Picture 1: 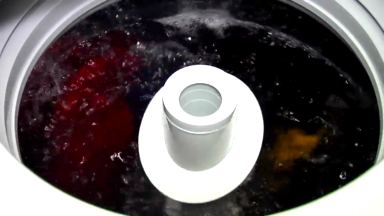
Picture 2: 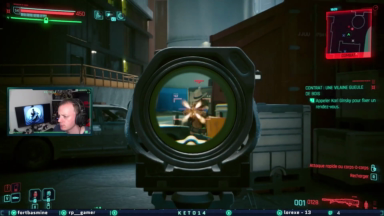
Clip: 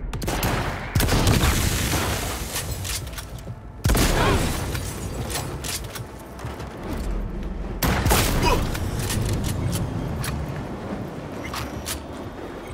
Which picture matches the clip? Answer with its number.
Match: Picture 2